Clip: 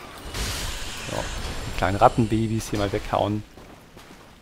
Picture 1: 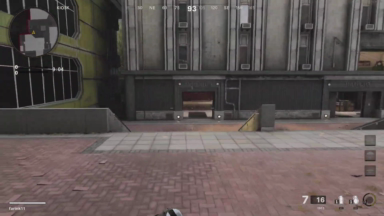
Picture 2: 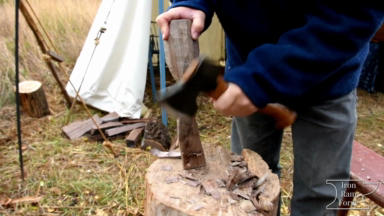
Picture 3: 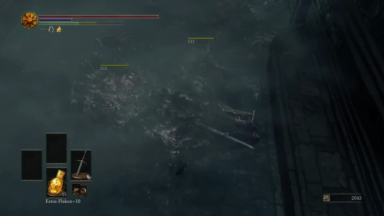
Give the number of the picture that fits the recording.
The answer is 3